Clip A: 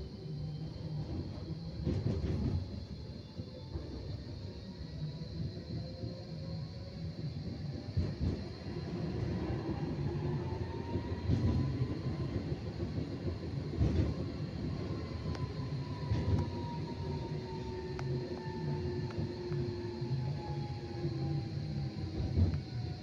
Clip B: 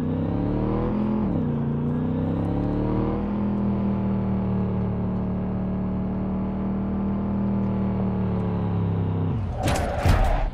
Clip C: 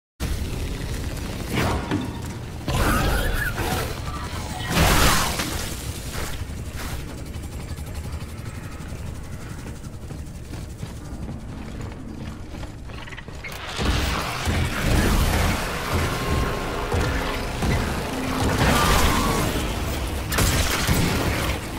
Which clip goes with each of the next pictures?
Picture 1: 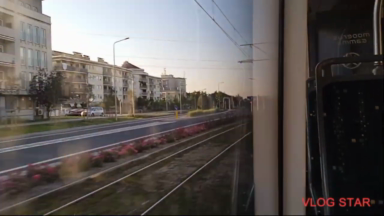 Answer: A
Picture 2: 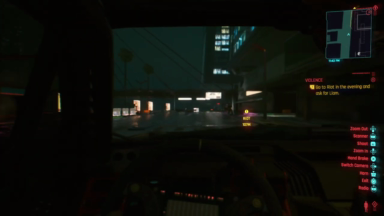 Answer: B